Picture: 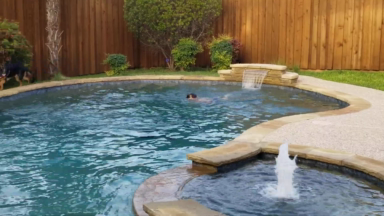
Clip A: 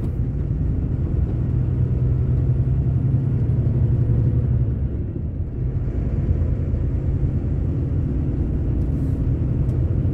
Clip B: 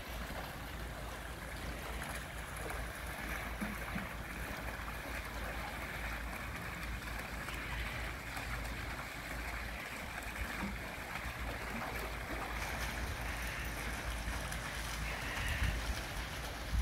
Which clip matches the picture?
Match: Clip B